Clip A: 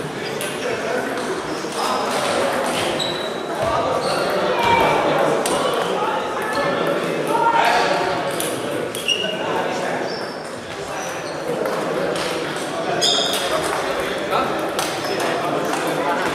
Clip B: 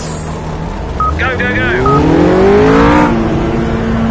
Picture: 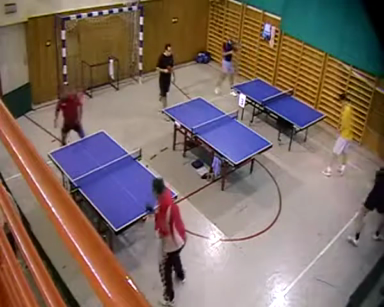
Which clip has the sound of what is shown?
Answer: A